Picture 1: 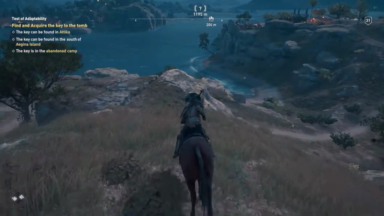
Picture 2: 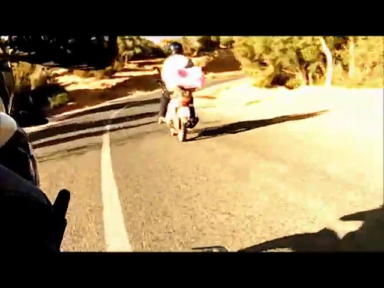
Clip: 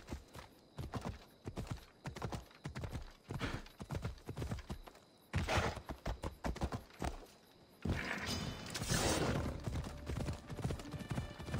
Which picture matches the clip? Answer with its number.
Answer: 1